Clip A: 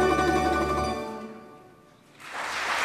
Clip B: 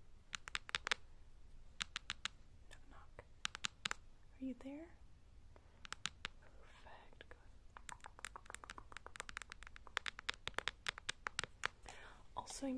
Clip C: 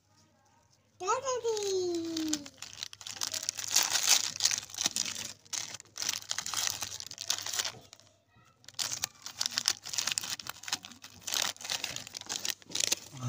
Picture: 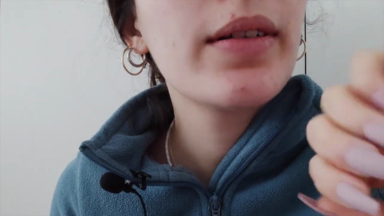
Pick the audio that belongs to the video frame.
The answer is B